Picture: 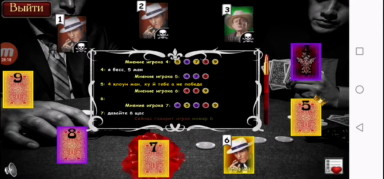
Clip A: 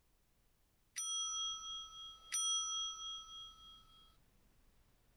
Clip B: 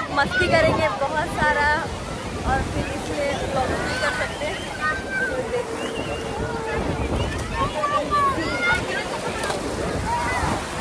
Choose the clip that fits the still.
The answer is A